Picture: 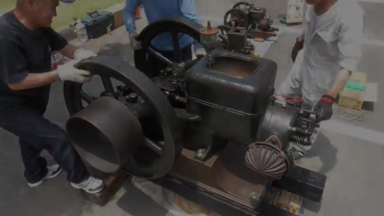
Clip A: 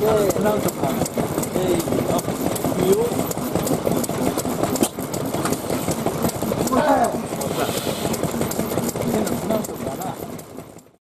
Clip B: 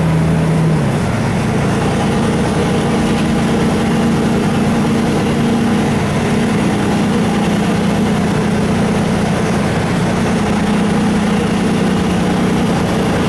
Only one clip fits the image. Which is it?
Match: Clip A